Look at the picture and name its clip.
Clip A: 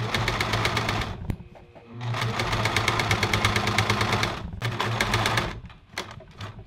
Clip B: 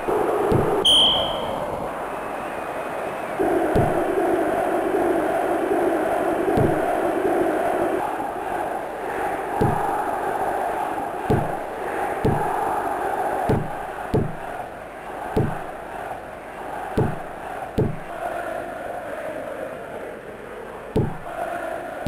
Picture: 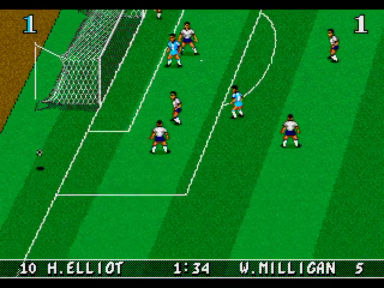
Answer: B